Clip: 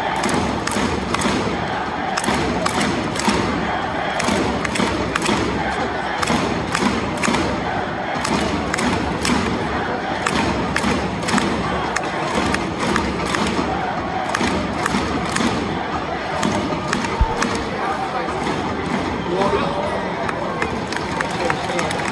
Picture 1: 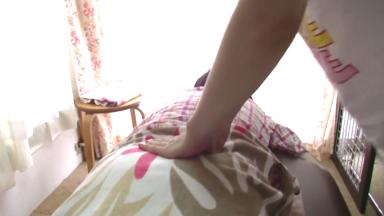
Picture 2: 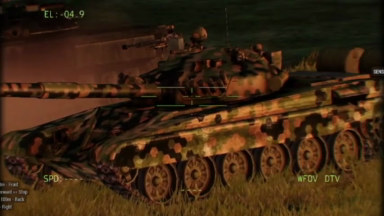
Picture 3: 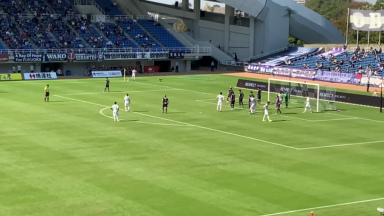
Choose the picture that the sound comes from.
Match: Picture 3